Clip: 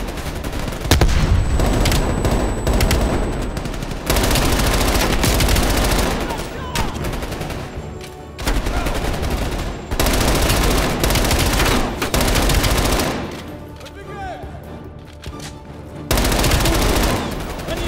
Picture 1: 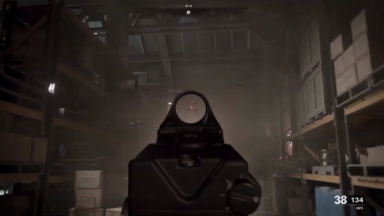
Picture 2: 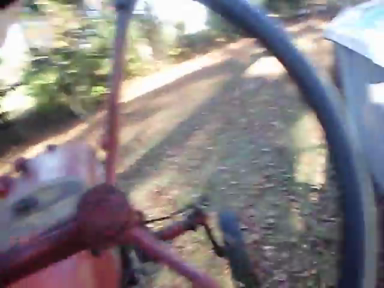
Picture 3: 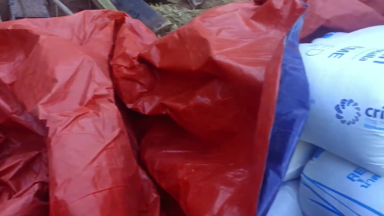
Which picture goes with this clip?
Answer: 1